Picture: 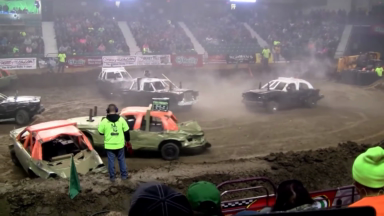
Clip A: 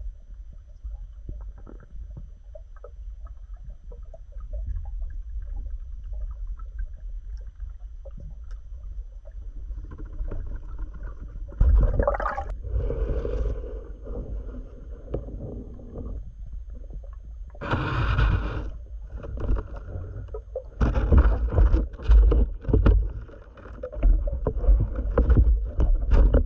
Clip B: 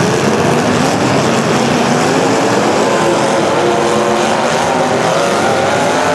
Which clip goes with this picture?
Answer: B